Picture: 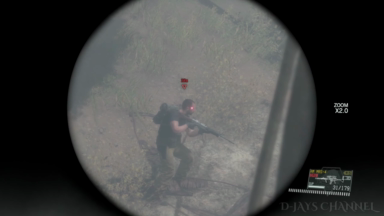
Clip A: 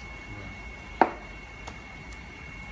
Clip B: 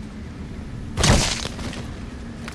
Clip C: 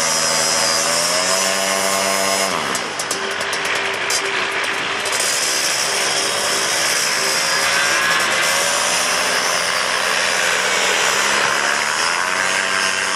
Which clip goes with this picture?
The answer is B